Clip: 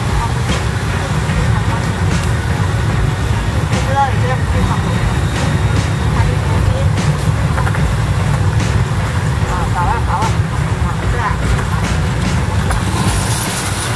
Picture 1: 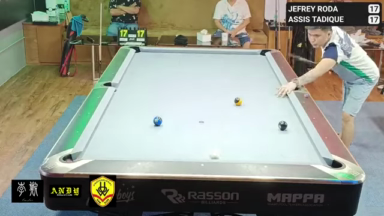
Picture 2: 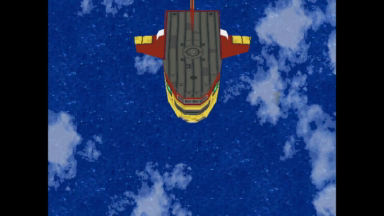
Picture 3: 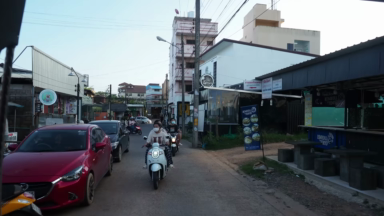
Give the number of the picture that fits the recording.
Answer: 3